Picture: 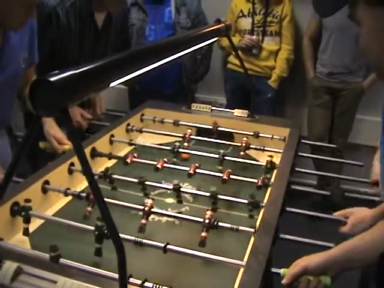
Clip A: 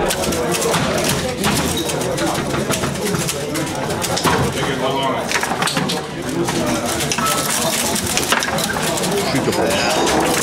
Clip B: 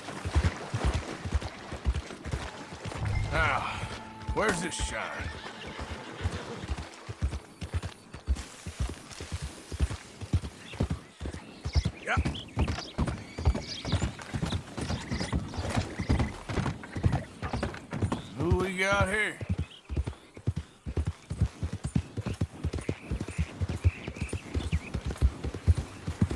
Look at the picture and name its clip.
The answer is A